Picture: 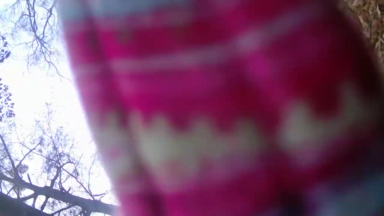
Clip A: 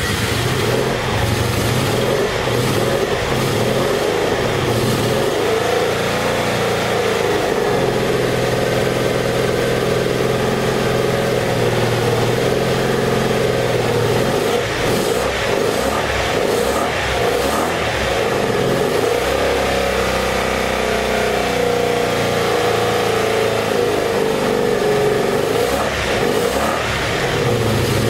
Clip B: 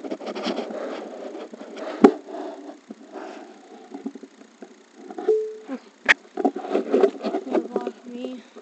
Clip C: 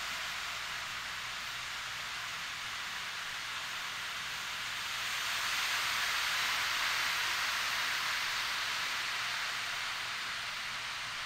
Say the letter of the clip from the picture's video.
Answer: B